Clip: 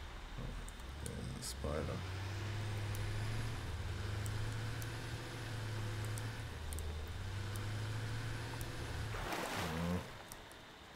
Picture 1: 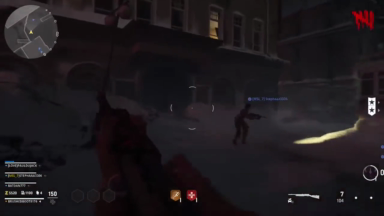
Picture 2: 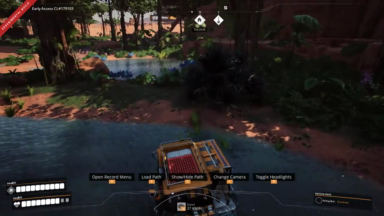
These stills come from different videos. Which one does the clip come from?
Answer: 2